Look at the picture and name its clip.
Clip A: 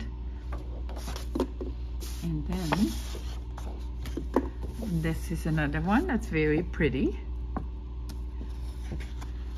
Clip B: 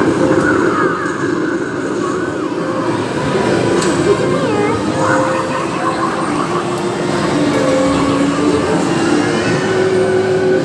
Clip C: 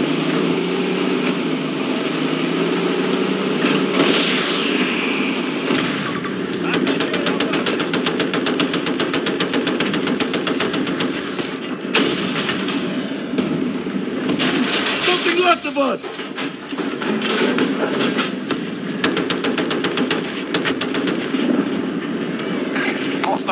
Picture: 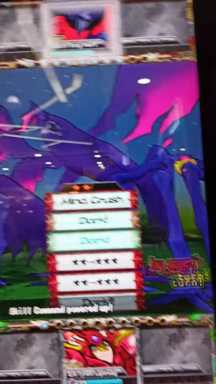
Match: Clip B